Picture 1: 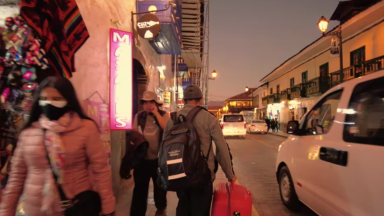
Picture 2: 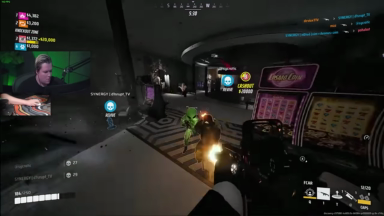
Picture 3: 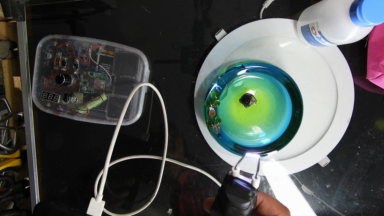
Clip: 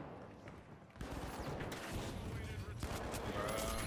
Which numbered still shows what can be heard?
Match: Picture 2